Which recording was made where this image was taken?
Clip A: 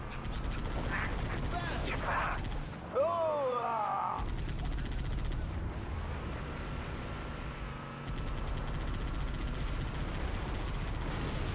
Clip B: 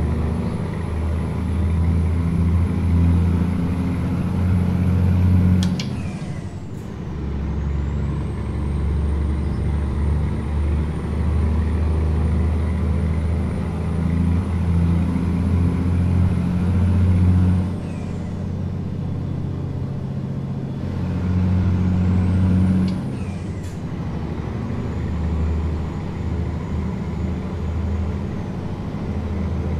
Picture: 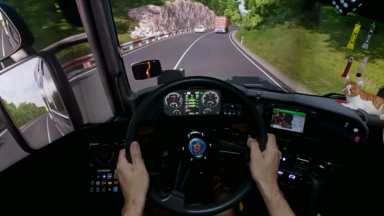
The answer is B